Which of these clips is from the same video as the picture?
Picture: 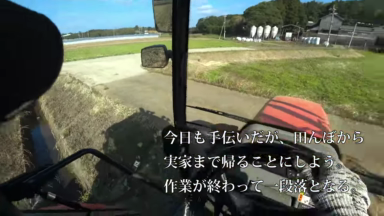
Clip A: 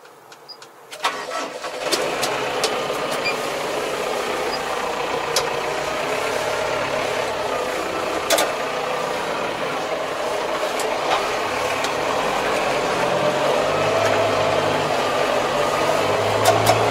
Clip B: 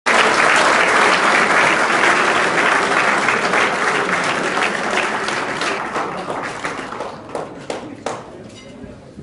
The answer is A